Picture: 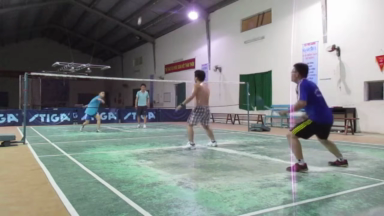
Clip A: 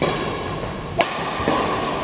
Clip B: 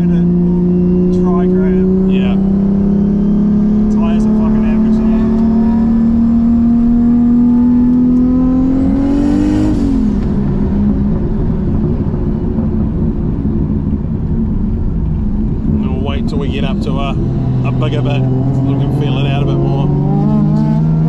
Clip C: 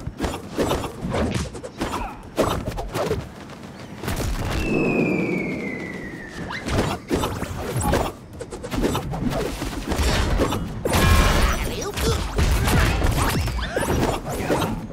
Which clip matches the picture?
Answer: A